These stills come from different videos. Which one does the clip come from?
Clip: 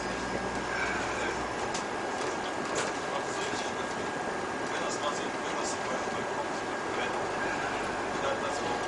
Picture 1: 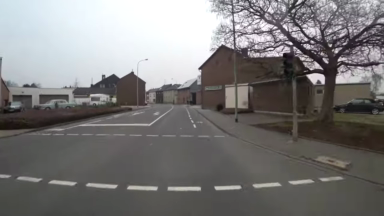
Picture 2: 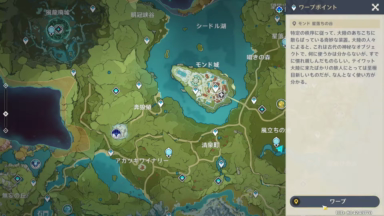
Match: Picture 1